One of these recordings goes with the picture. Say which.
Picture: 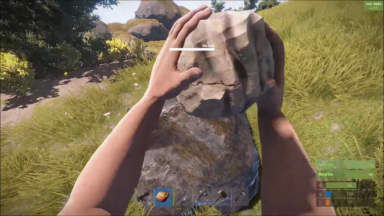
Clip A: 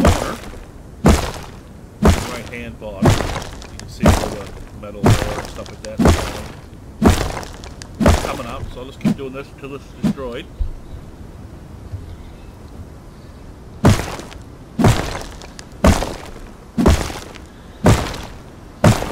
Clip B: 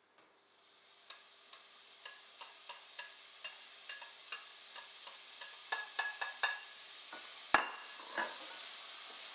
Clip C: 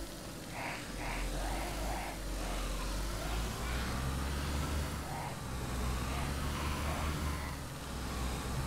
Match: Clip A